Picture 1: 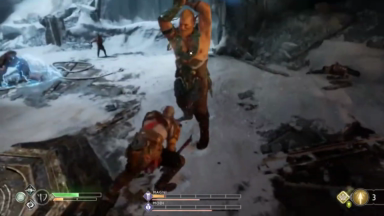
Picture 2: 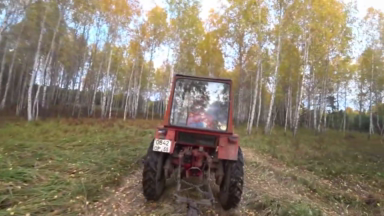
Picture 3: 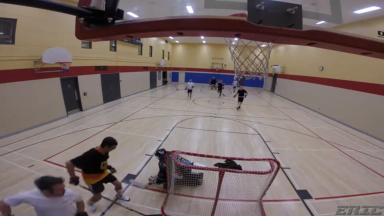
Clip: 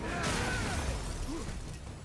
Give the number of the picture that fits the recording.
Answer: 1